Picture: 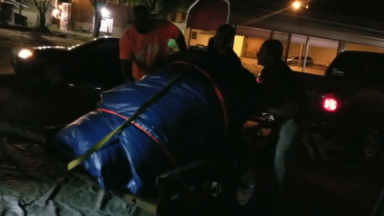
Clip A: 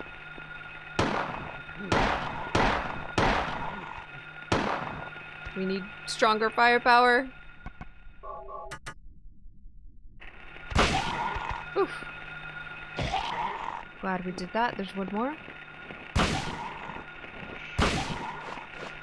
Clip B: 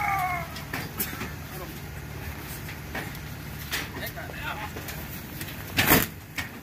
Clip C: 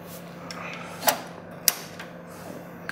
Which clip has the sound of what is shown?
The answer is B